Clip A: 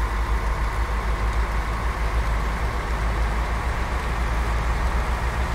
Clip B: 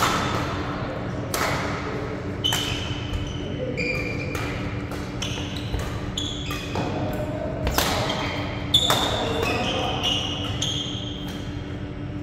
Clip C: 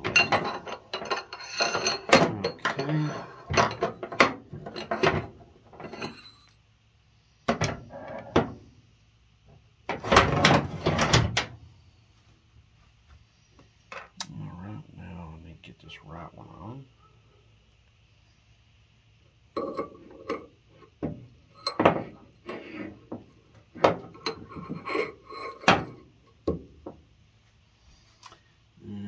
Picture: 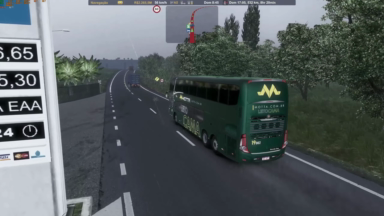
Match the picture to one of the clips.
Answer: A